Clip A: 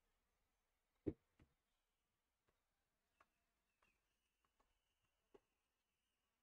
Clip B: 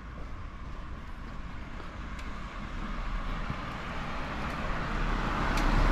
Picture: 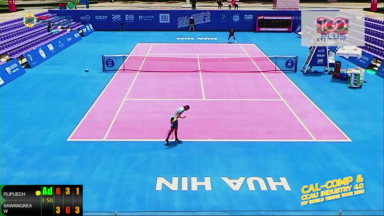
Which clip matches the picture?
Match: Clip A